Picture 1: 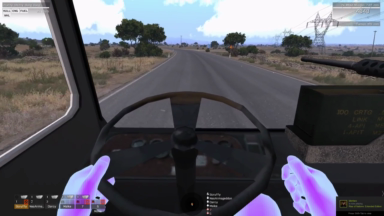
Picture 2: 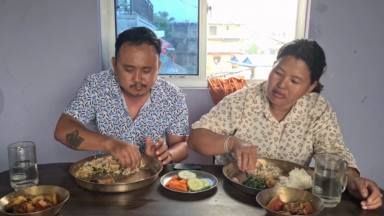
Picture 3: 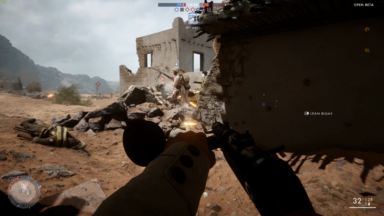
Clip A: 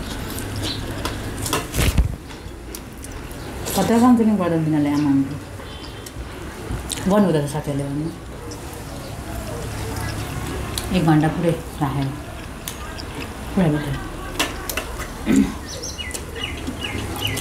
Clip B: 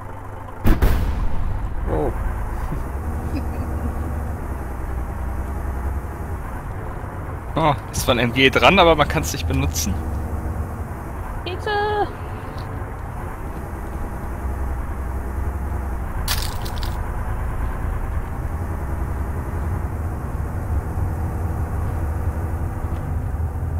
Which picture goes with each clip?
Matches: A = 2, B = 1